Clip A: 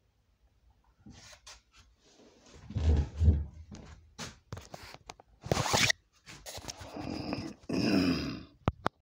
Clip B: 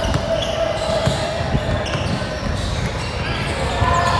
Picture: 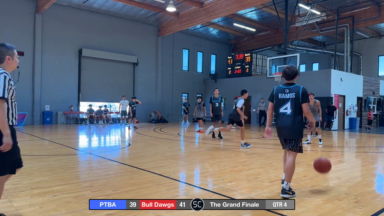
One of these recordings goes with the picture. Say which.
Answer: B